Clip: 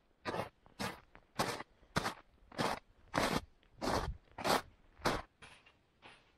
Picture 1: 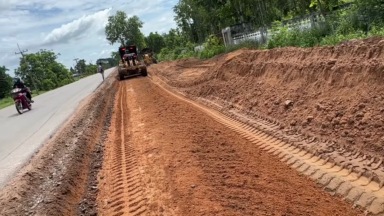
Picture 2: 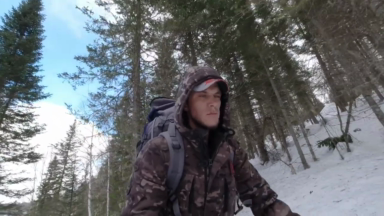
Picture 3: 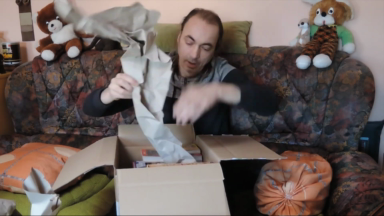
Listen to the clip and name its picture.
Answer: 2